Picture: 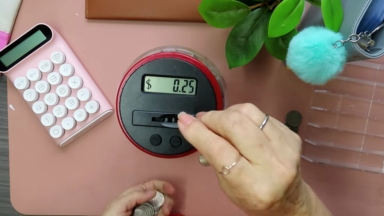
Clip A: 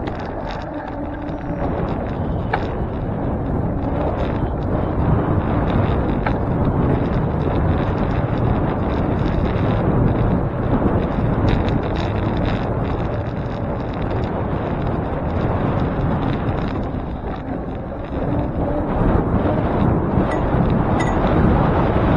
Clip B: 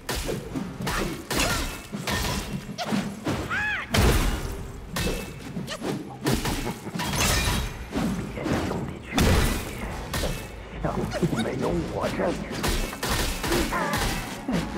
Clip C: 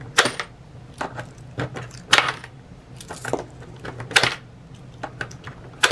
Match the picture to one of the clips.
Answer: C